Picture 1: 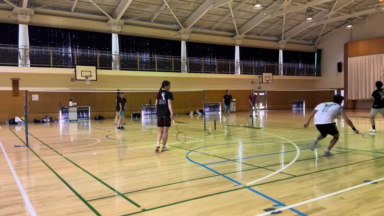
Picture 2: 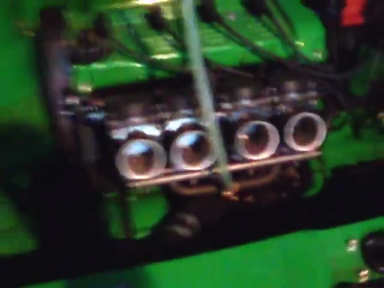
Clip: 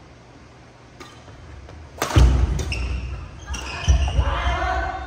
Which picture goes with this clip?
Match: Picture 1